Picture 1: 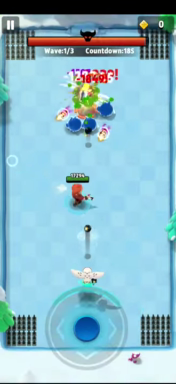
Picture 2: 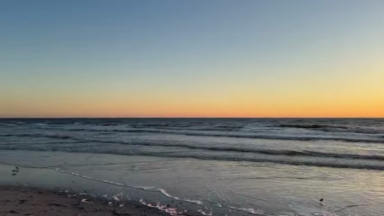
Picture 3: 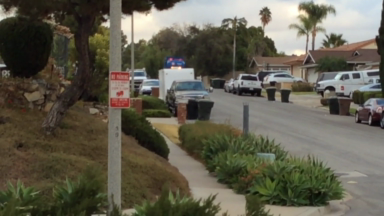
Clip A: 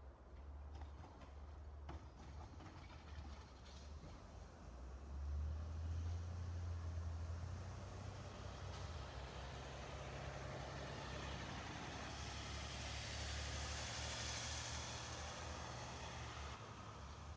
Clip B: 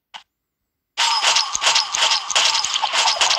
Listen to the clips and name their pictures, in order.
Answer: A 3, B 1